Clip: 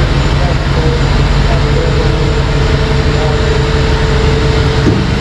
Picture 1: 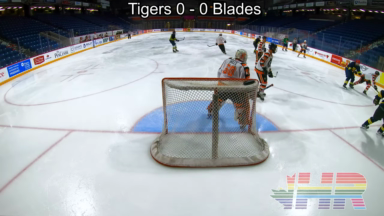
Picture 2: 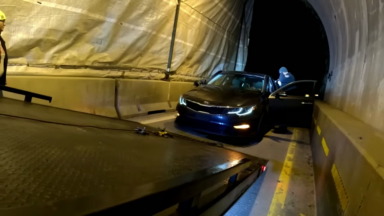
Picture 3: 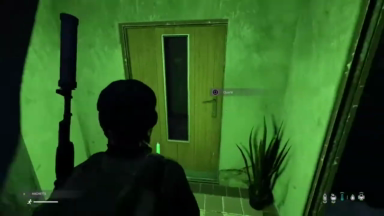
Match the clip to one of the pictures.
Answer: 2